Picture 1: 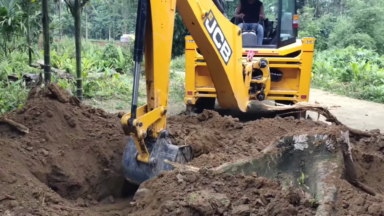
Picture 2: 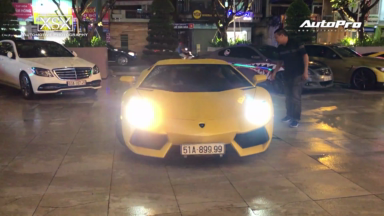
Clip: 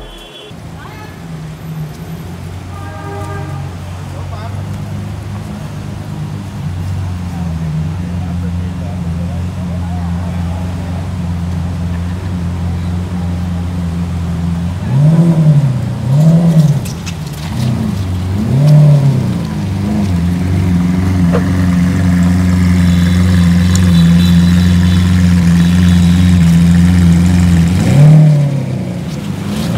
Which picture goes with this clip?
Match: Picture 2